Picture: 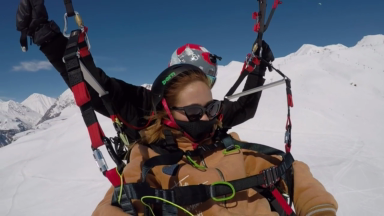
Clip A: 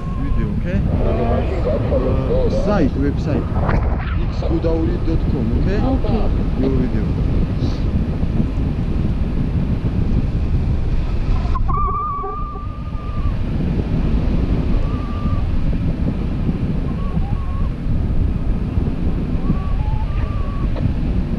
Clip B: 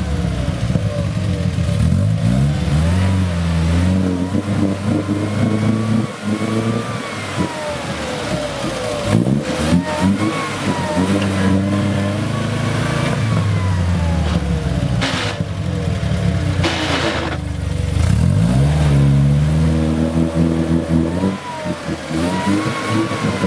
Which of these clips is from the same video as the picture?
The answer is A